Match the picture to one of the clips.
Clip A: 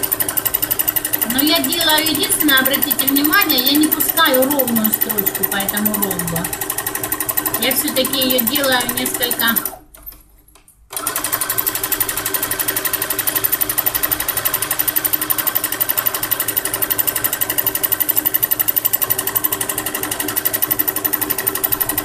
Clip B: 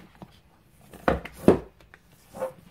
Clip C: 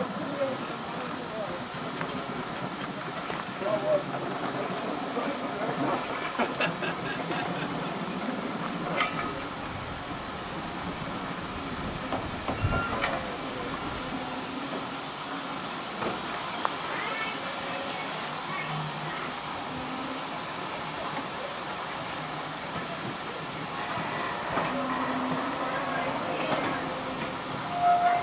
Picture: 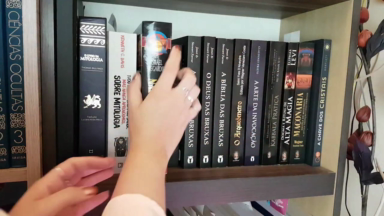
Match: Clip B